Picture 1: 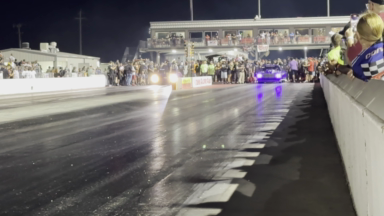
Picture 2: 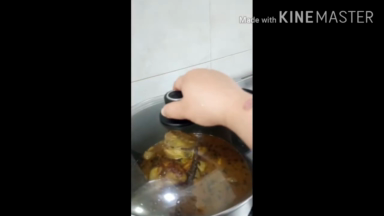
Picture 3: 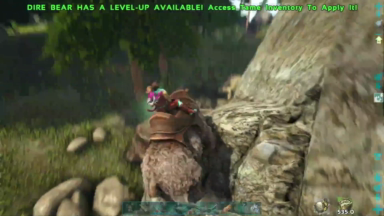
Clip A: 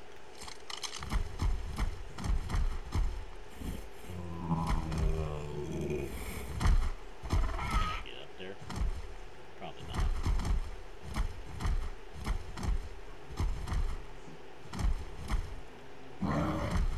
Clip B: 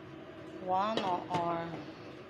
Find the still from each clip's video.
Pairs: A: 3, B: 2